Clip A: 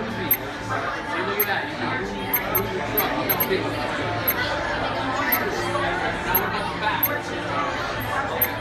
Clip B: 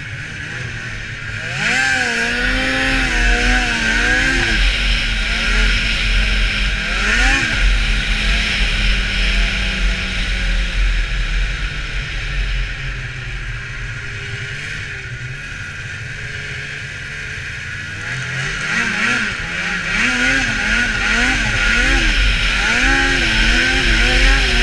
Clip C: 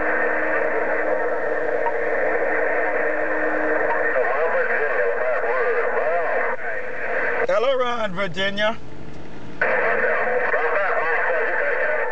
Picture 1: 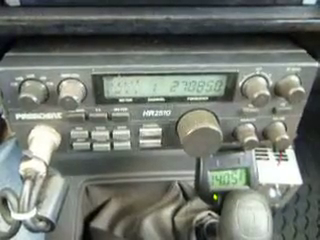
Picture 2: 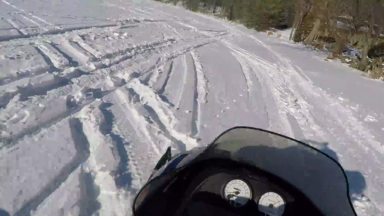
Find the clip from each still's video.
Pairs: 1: C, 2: B